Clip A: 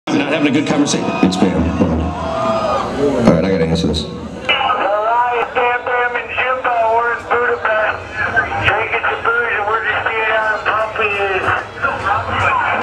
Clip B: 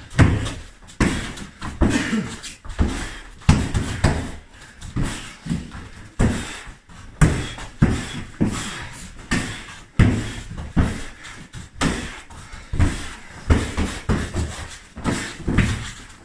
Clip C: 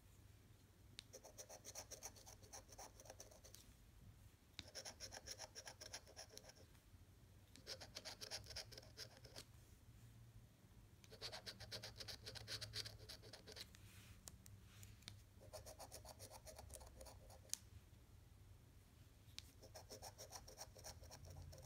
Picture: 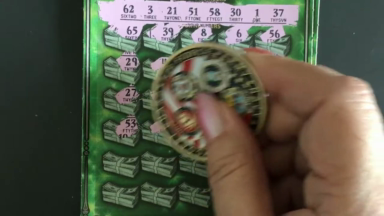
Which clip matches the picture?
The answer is C